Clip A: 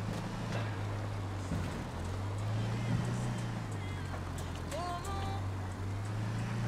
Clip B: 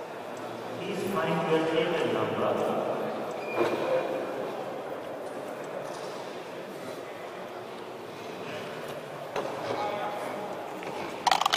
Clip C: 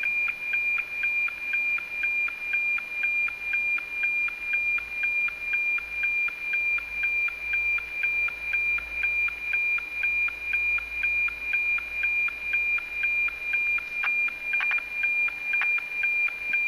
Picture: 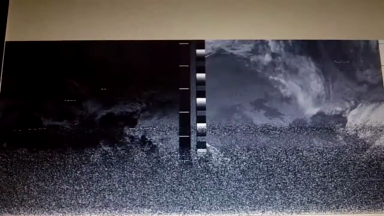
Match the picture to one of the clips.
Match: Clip C